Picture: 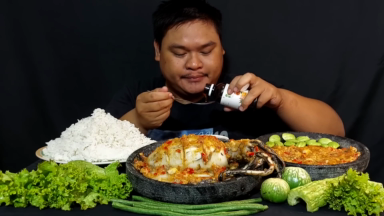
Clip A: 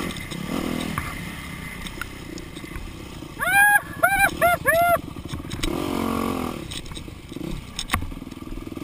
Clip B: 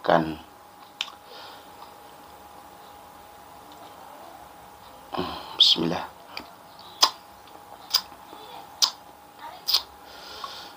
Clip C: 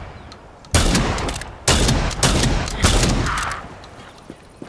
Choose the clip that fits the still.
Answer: B